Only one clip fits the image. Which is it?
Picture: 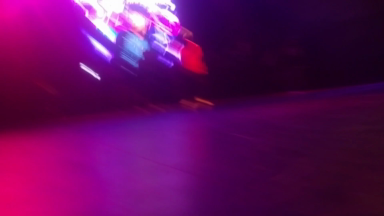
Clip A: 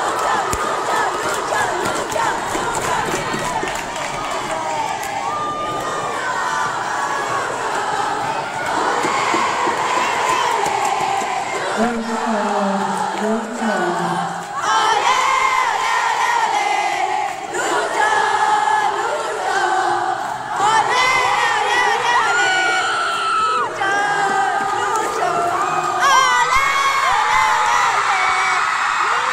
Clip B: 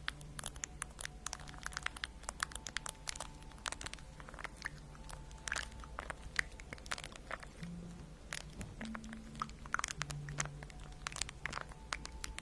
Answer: A